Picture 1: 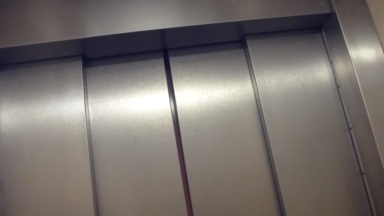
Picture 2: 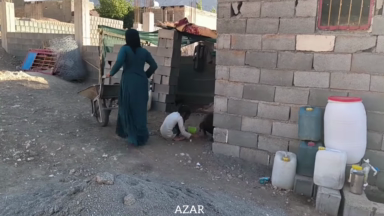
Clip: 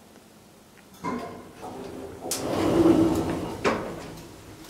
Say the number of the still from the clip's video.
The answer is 1